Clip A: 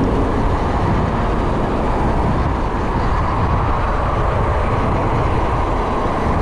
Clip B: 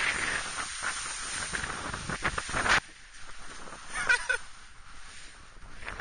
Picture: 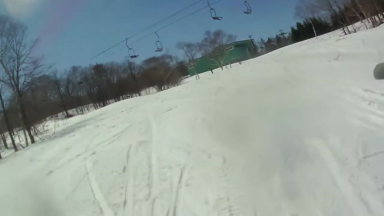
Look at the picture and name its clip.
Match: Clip B